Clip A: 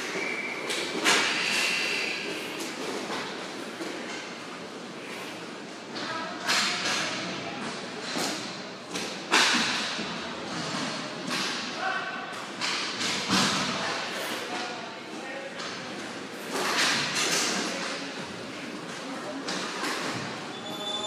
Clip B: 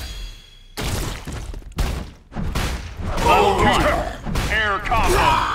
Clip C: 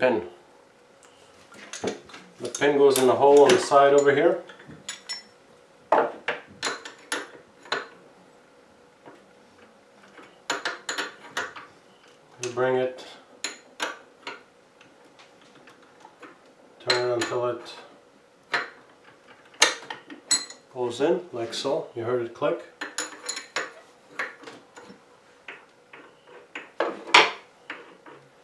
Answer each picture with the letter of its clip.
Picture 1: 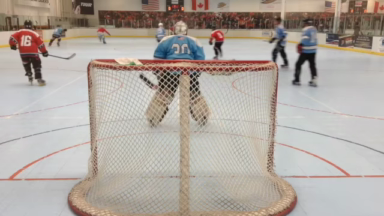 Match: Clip A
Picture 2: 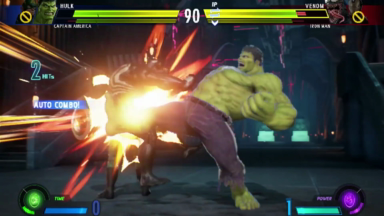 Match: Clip B